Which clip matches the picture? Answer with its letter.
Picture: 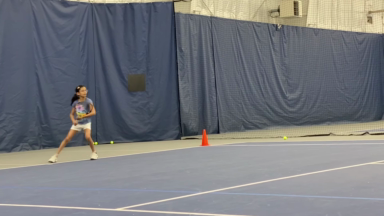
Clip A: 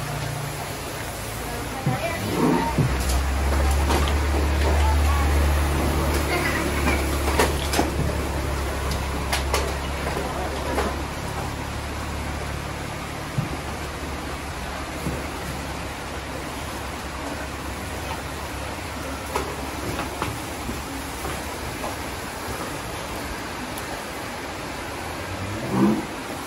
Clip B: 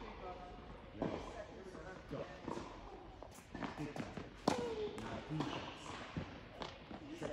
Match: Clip B